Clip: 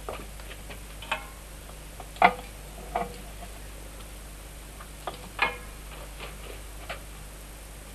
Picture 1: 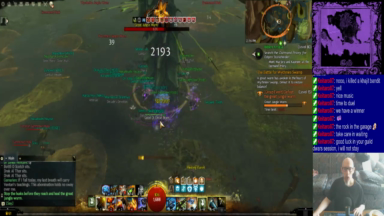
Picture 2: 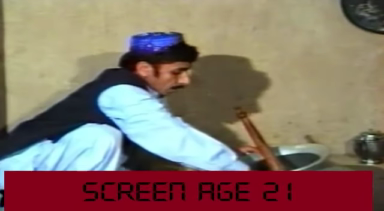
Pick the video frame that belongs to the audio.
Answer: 2